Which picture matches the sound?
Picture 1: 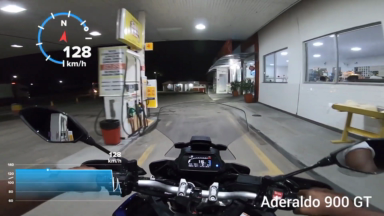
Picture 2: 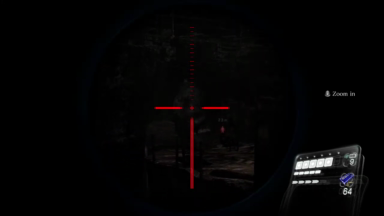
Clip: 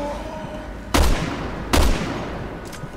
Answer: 2